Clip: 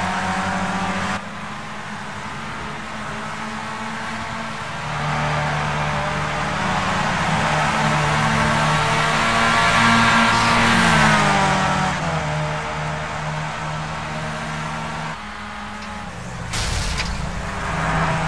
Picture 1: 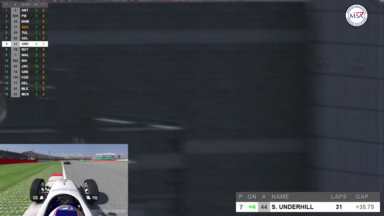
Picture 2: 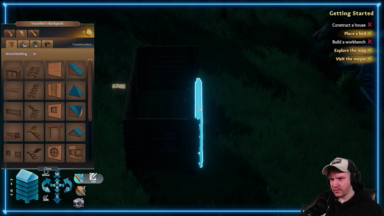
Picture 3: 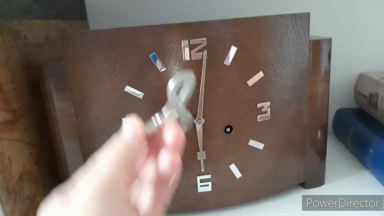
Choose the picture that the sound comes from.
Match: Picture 1